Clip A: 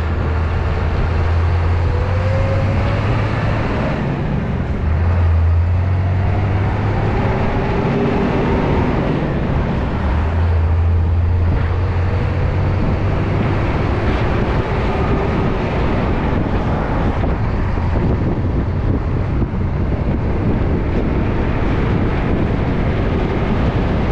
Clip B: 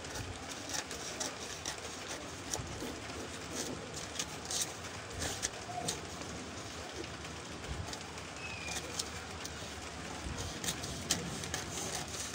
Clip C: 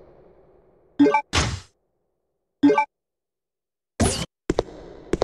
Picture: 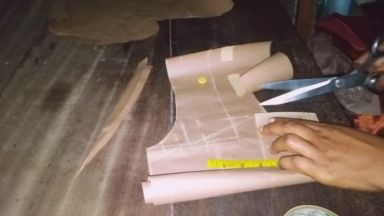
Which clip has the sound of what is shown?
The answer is B